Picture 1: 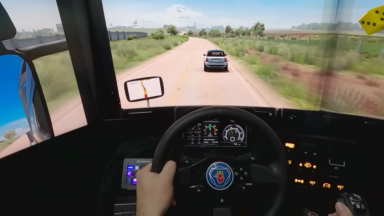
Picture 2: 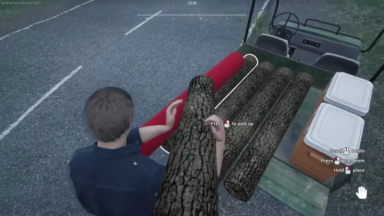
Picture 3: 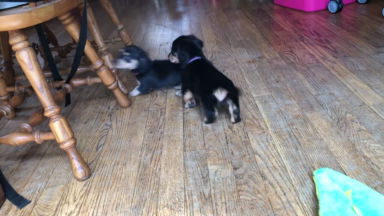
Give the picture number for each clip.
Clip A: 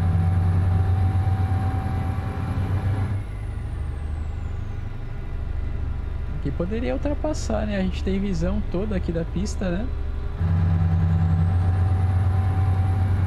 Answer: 1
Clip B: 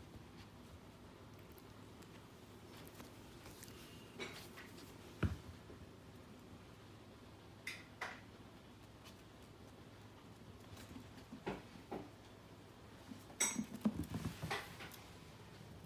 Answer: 3